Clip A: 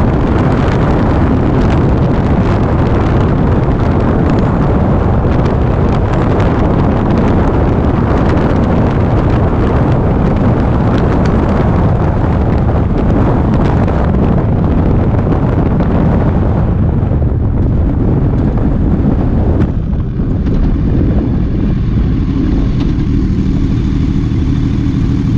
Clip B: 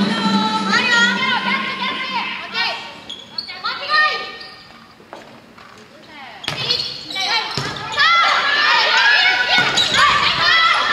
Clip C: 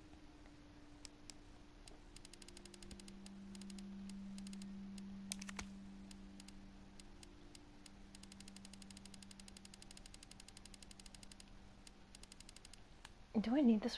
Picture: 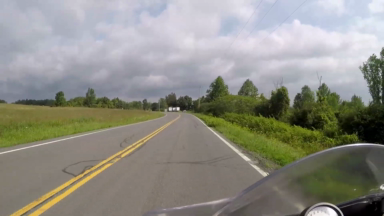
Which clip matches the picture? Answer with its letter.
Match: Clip A